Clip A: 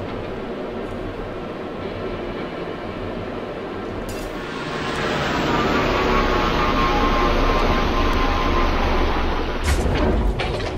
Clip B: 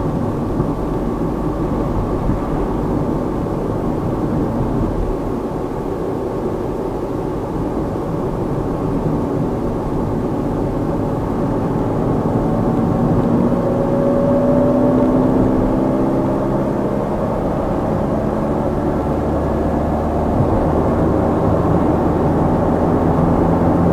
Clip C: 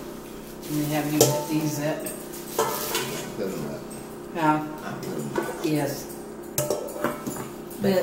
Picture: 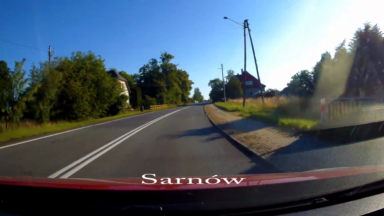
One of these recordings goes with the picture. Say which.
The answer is B